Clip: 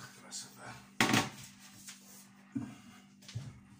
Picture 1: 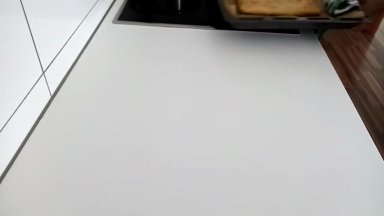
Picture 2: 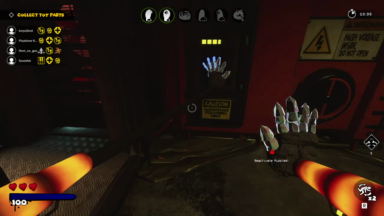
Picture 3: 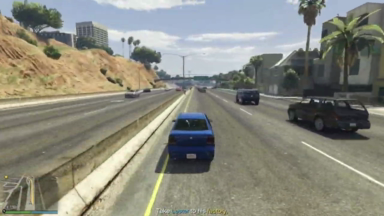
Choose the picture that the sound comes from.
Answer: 1